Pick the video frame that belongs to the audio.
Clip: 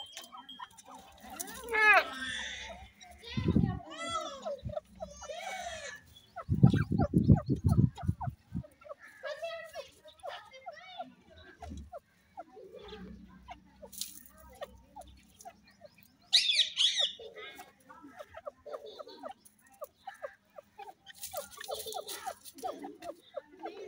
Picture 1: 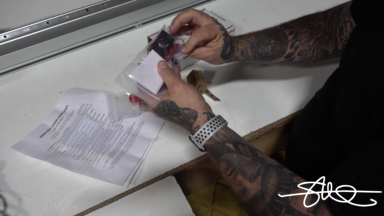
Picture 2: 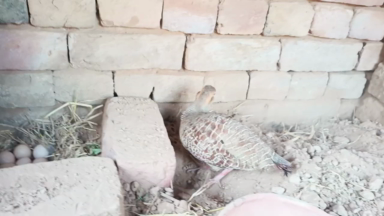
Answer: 2